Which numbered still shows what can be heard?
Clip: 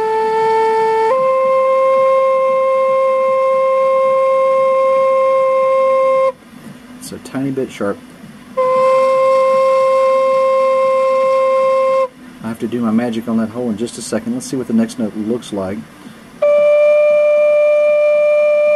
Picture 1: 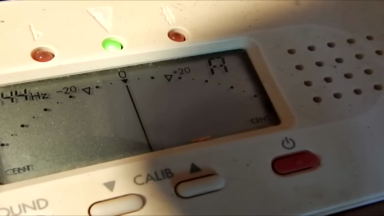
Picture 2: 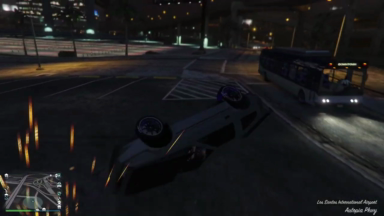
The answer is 1